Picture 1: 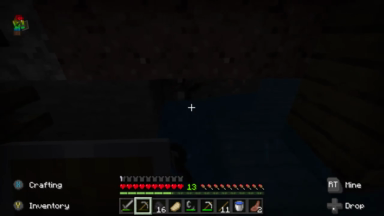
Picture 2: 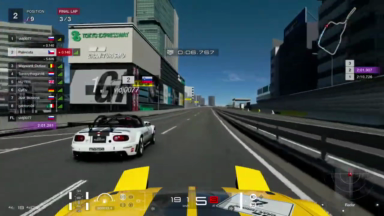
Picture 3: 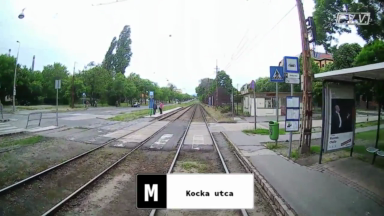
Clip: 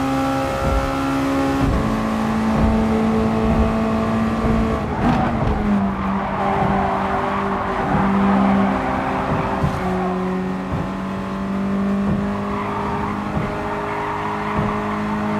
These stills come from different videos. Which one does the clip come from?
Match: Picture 2